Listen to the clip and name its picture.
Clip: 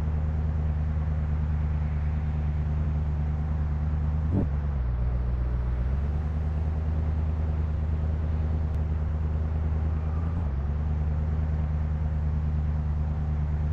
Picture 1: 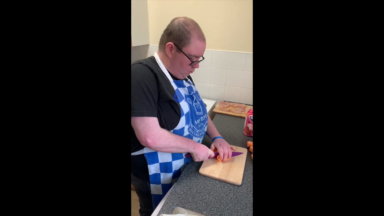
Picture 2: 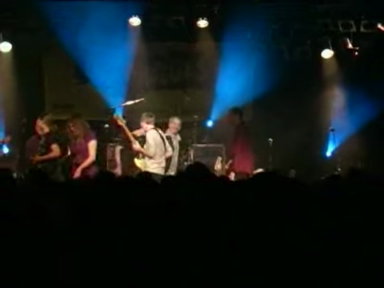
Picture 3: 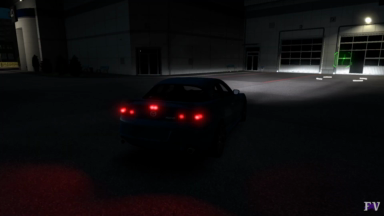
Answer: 3